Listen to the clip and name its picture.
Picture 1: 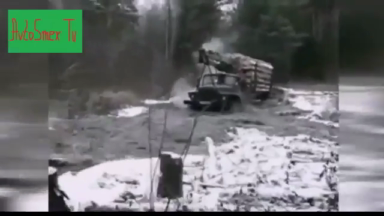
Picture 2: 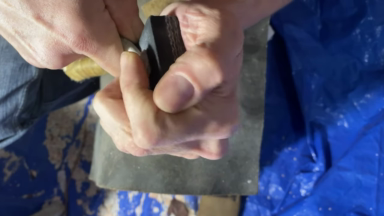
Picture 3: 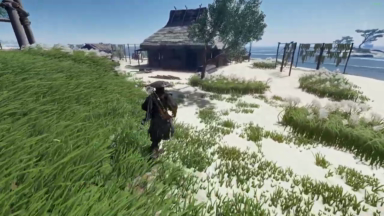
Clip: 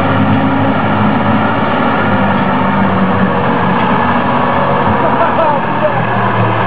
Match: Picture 1